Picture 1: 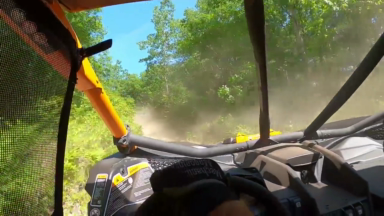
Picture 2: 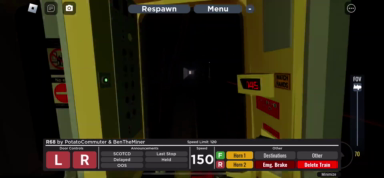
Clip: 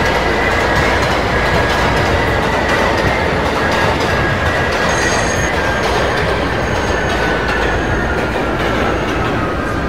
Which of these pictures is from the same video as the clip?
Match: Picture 2